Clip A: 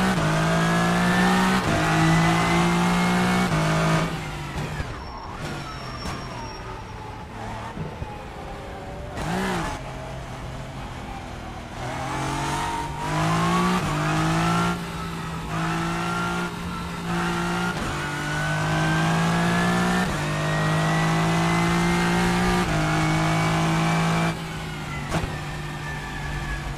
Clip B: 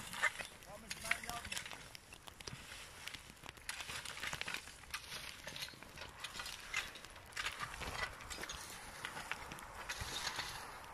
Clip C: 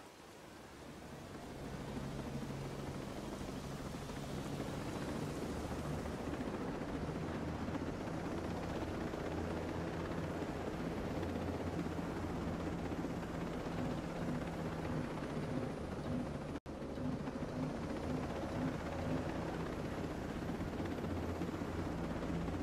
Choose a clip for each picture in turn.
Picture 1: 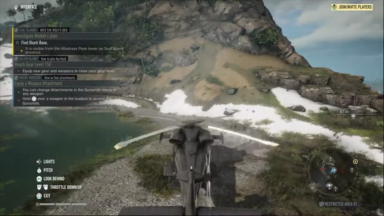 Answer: C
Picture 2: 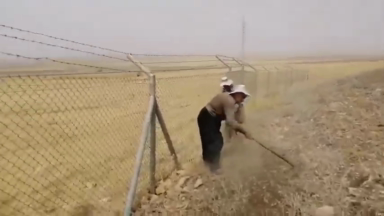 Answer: B